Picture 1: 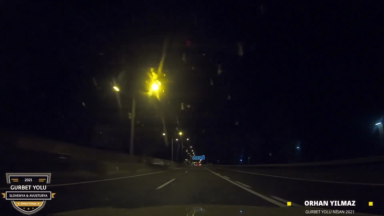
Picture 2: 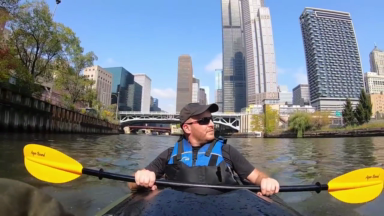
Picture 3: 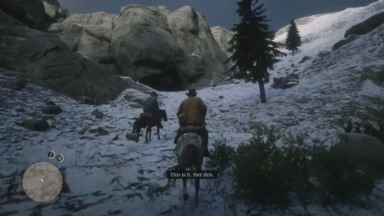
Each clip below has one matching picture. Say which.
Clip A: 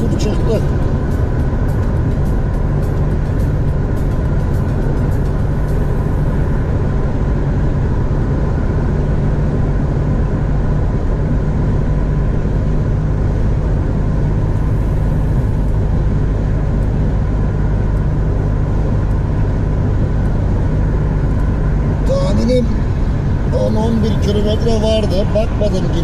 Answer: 1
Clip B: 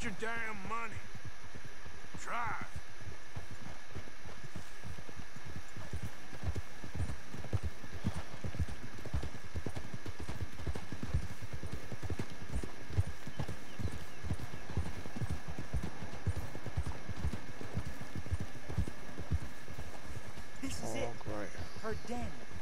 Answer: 3